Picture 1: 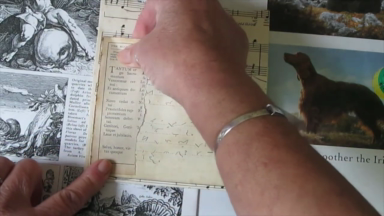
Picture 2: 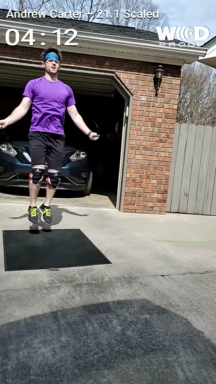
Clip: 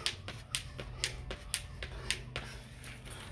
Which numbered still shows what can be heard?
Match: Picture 2